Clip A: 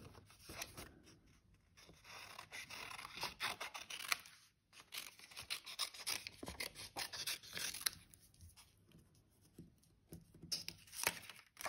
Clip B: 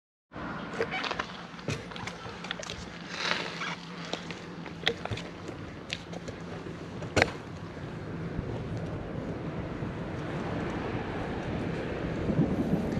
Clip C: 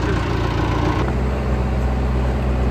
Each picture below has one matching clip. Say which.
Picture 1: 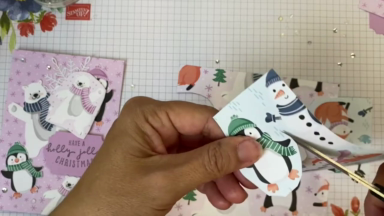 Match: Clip A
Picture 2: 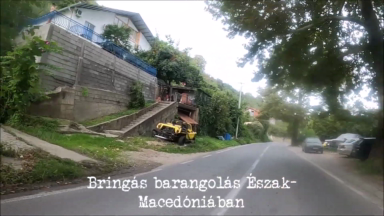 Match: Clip B